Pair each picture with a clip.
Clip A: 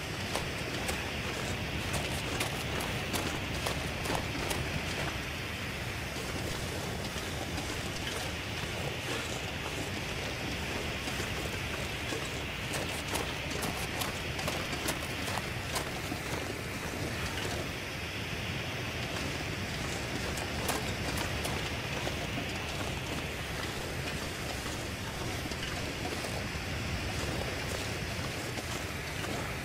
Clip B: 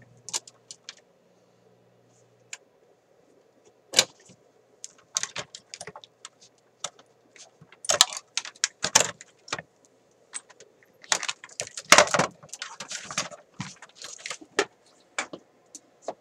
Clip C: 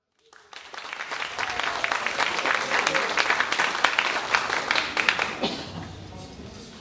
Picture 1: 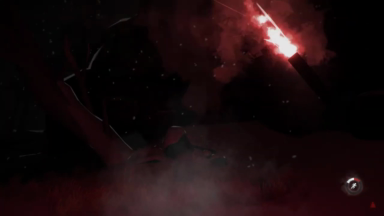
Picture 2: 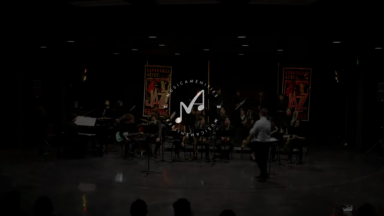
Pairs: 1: A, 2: C